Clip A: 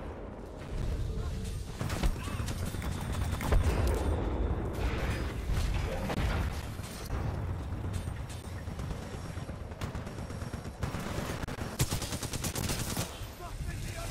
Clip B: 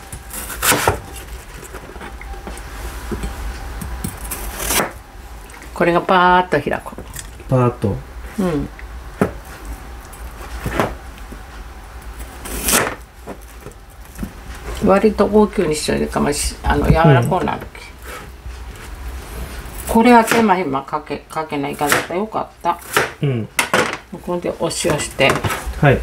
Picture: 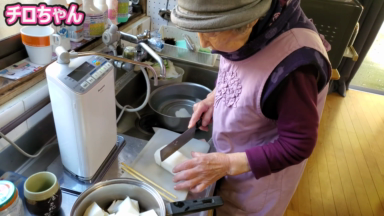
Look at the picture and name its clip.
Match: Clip B